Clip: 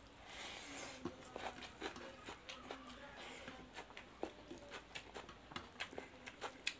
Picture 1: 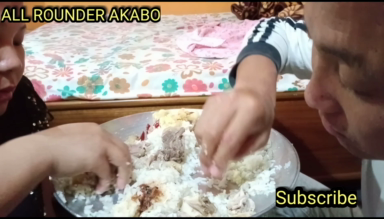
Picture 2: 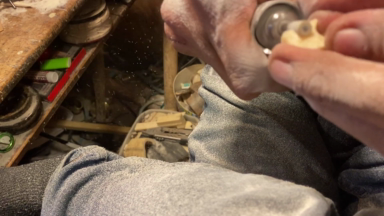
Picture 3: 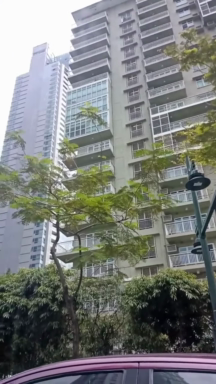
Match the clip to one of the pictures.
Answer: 1